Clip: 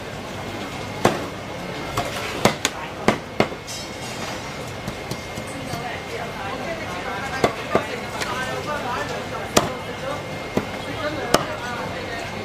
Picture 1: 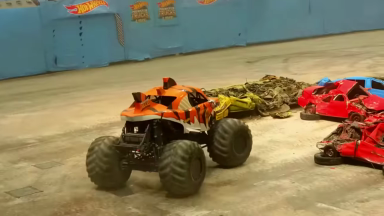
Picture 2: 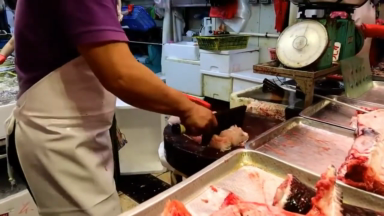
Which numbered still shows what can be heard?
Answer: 2